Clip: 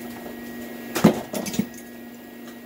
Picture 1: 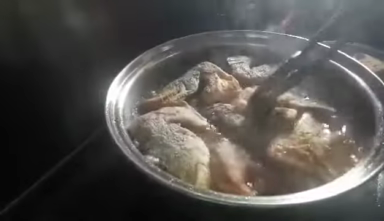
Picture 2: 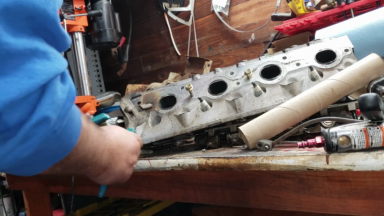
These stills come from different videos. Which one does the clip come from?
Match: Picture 2